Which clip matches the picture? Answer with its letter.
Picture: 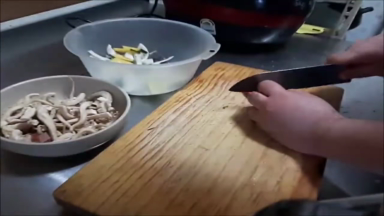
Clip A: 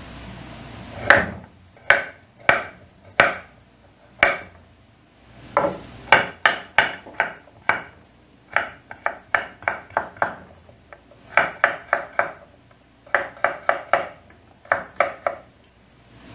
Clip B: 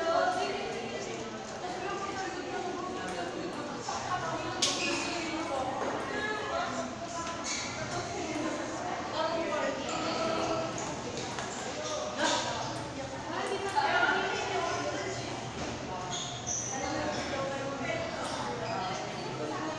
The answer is A